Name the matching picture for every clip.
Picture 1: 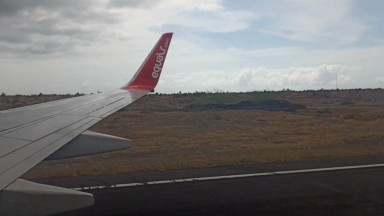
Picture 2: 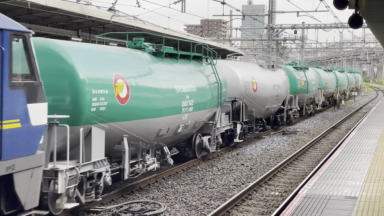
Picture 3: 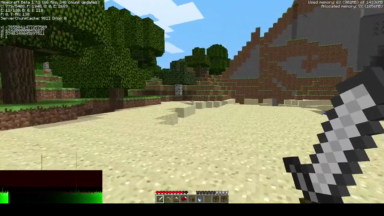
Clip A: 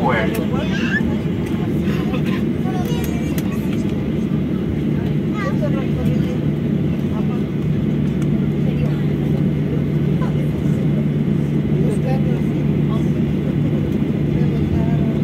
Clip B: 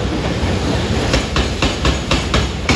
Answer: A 1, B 2